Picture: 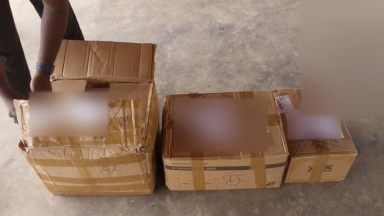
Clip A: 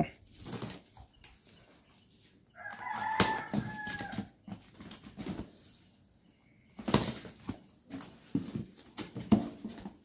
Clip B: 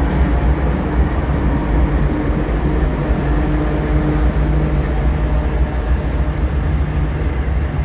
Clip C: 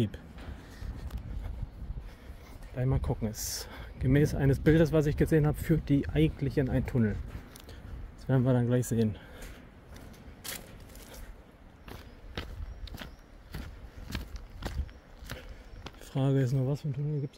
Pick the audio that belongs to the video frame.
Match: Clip A